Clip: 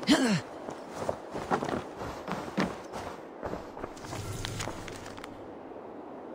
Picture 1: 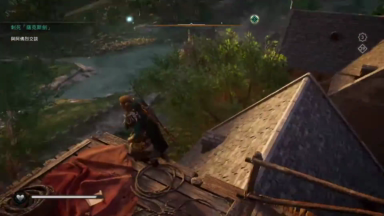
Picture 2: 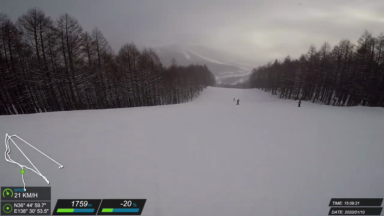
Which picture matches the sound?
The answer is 1